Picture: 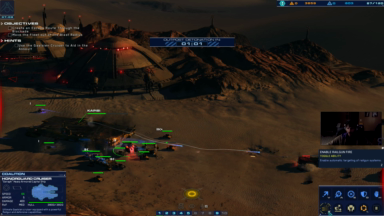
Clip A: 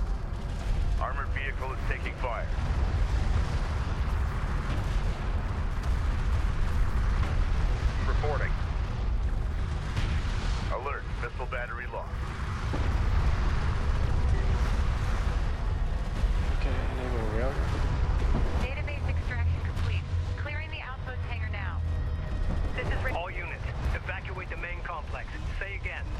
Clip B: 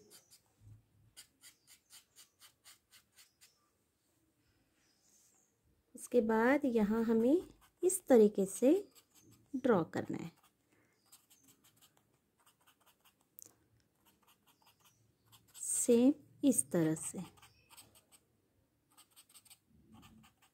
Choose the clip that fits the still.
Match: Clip A